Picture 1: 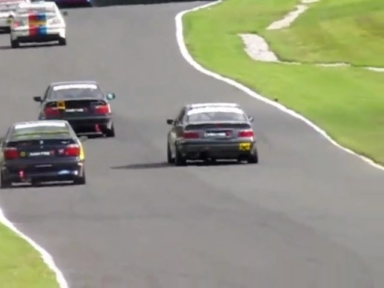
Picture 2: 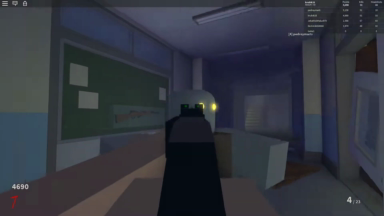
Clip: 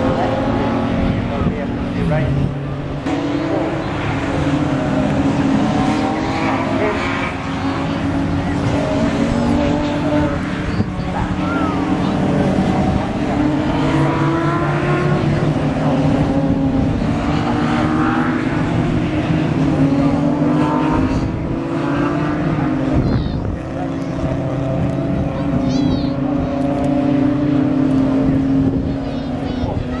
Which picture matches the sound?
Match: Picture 1